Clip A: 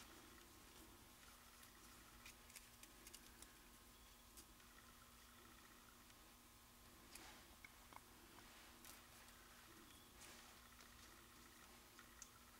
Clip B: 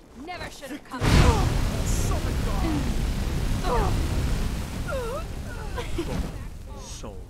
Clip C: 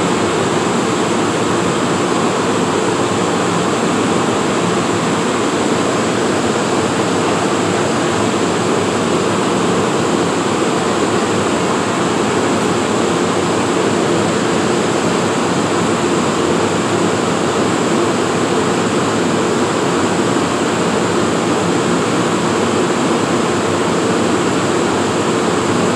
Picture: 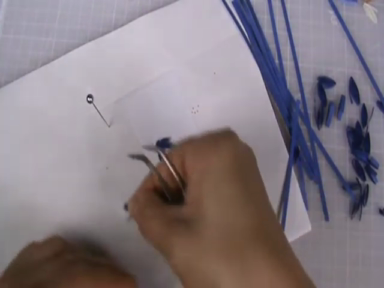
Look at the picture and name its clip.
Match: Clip A